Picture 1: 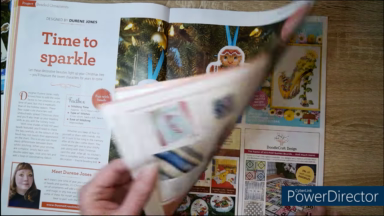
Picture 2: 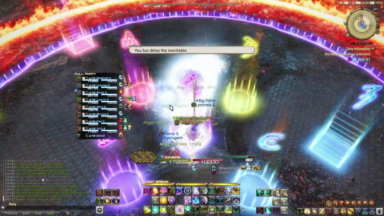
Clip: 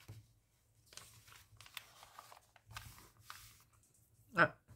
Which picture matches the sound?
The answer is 1